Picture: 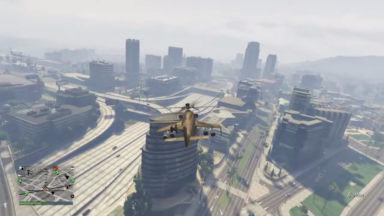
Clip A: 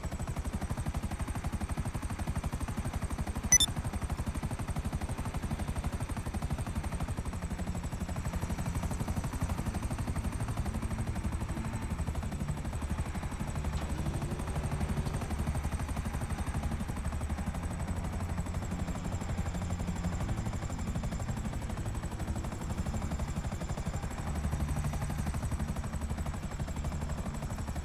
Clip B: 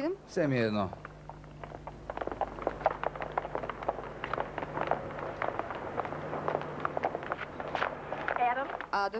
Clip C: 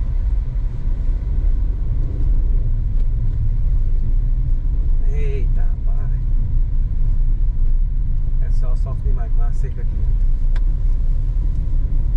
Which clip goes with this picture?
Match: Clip A